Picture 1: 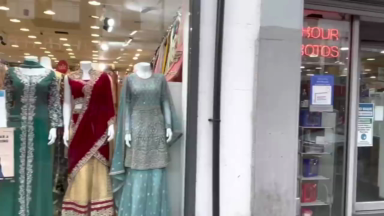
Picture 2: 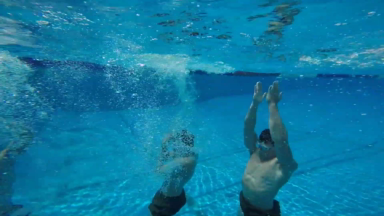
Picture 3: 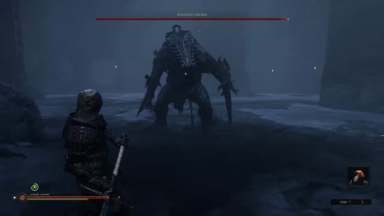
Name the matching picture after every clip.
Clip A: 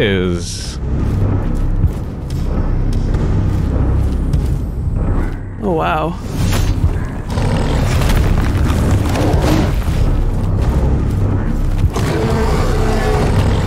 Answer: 3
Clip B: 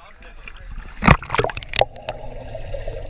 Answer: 2